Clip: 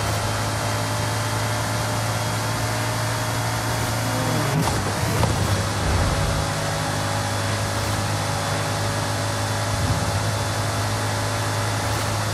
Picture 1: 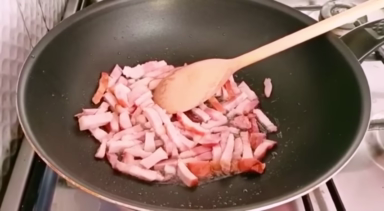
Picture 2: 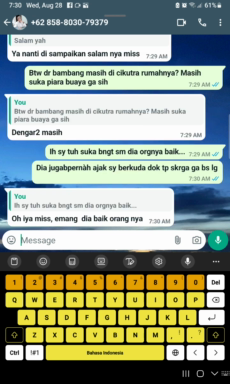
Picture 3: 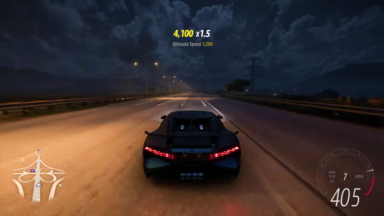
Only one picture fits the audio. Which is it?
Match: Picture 3